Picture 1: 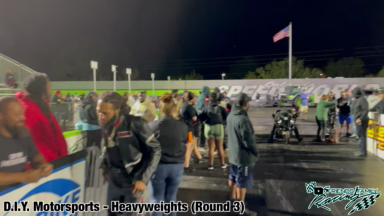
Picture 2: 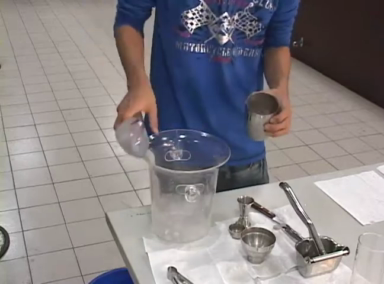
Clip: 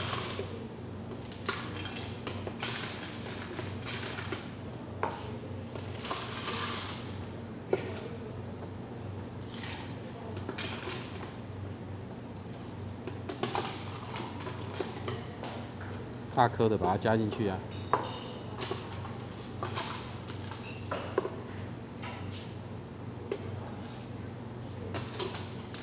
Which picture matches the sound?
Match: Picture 2